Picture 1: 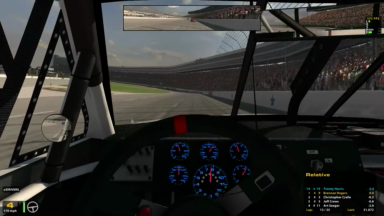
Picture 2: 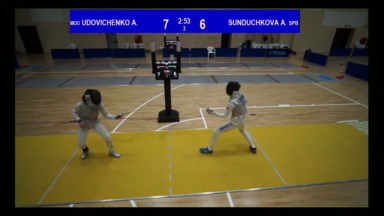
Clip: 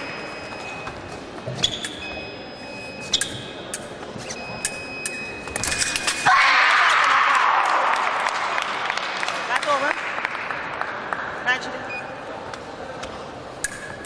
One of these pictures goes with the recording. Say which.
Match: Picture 2